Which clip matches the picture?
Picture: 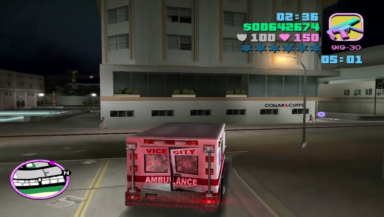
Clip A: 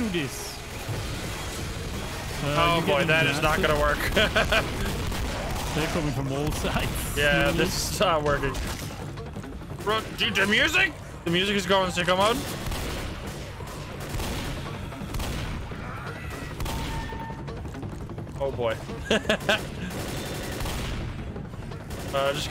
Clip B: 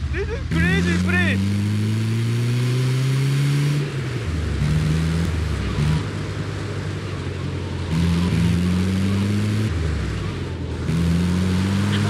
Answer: B